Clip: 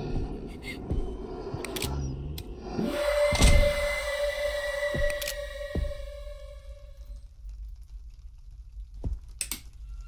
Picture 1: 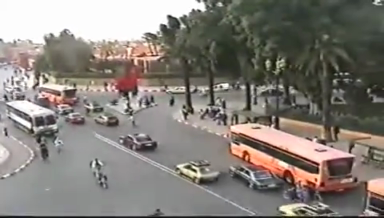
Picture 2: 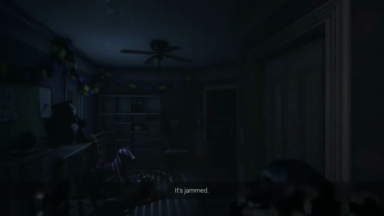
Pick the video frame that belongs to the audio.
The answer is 2